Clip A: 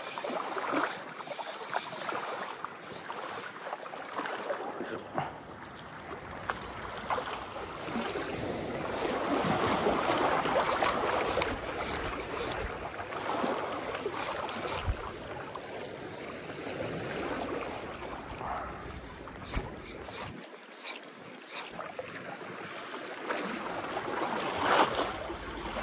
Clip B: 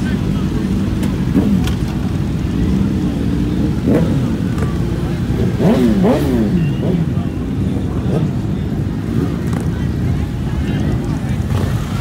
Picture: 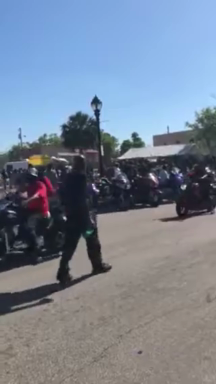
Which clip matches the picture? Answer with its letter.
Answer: B